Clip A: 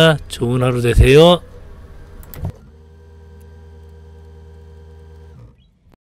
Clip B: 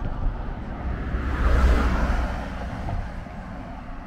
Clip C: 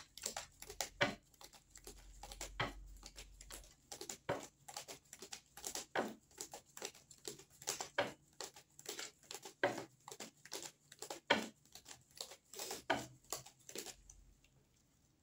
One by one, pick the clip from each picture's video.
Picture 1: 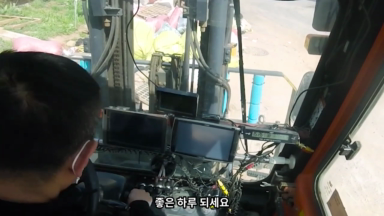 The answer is A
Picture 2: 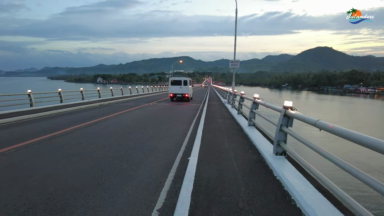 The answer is B